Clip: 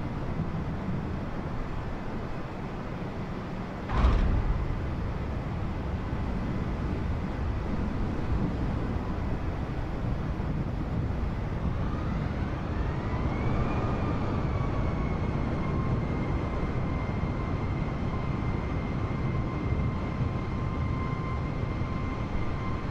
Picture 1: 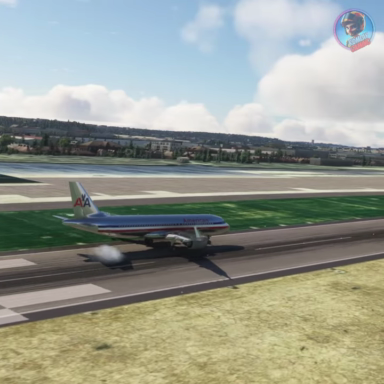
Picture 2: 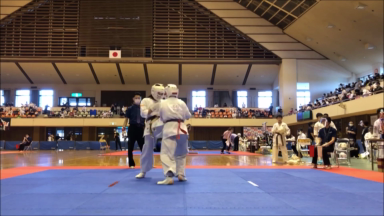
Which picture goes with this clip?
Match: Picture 1